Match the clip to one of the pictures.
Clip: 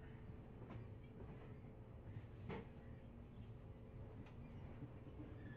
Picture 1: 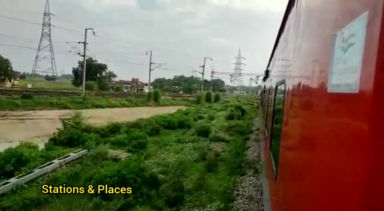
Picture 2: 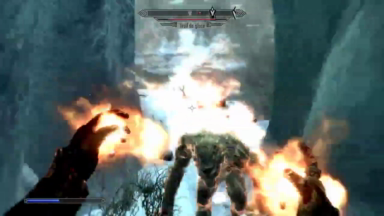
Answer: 1